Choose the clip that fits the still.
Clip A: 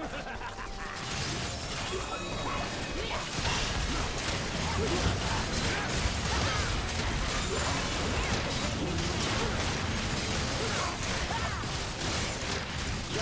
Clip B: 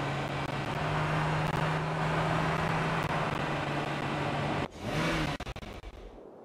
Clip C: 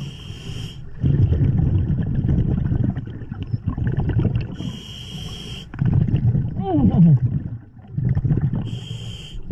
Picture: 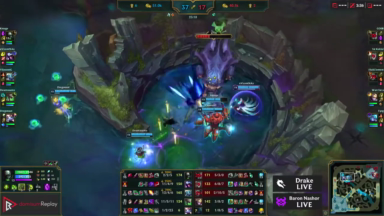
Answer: A